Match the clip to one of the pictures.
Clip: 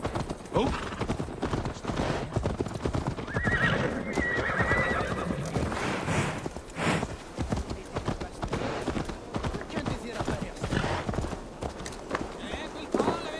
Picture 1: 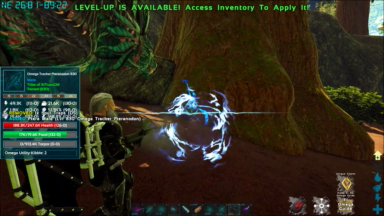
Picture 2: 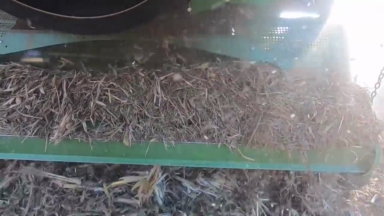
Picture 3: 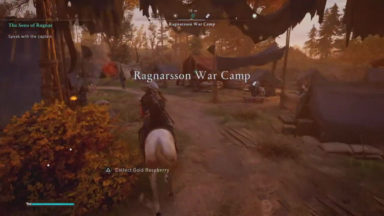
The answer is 3